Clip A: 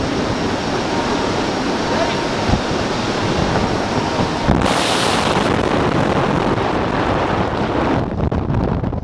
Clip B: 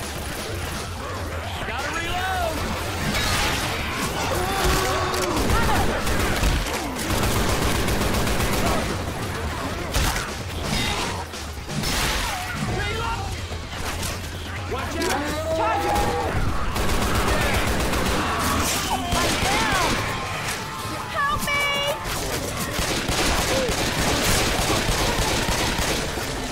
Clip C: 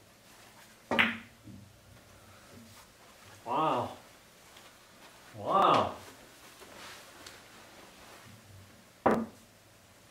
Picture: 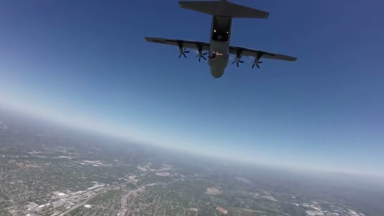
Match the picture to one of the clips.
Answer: A